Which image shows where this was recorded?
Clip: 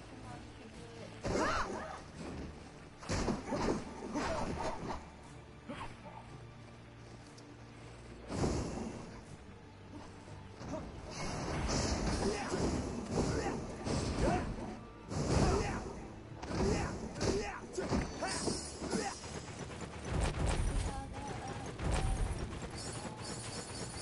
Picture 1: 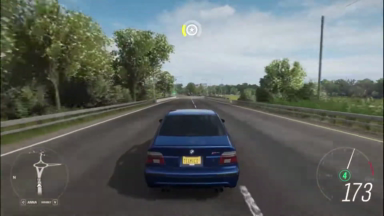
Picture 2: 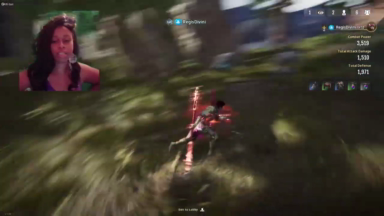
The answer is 2